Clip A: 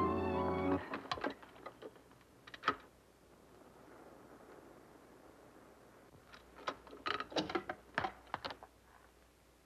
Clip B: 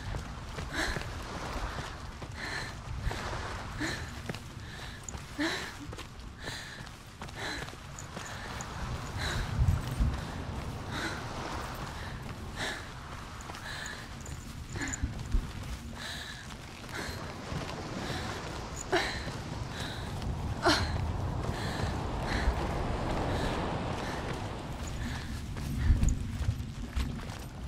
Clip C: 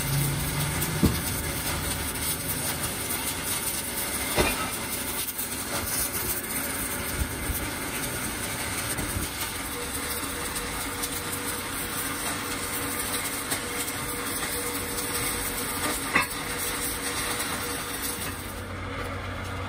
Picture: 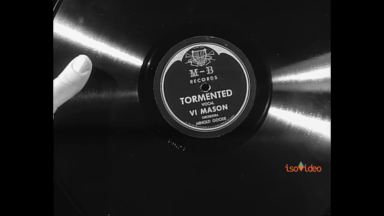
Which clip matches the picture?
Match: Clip A